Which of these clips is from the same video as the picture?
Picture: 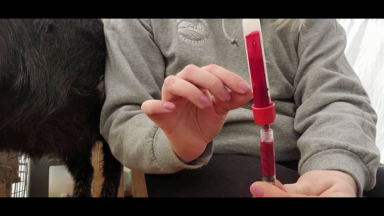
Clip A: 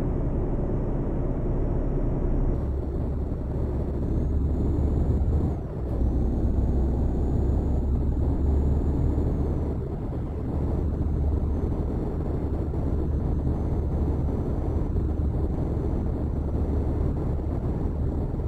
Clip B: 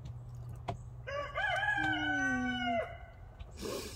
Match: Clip B